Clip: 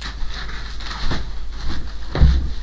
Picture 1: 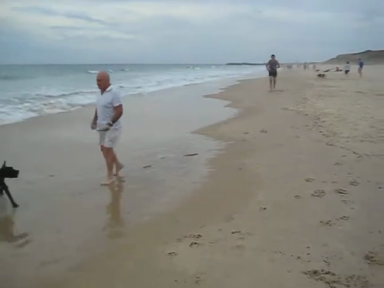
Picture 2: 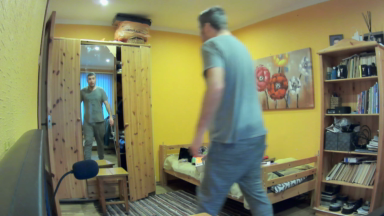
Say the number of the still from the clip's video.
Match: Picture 2